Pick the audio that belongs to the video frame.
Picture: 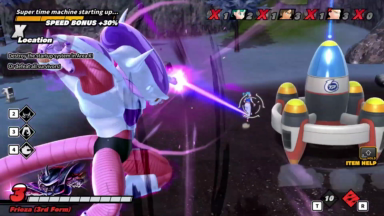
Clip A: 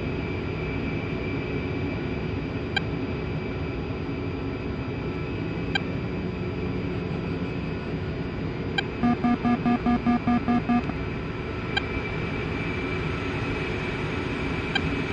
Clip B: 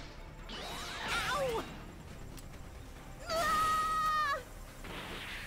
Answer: B